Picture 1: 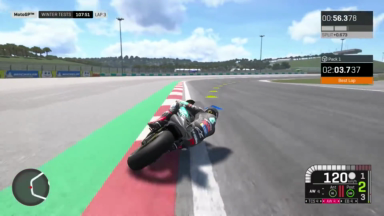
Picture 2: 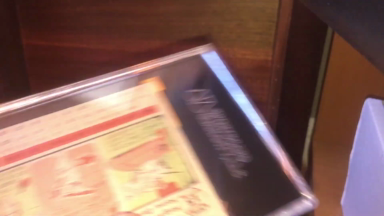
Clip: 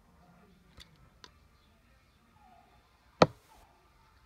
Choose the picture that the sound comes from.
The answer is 2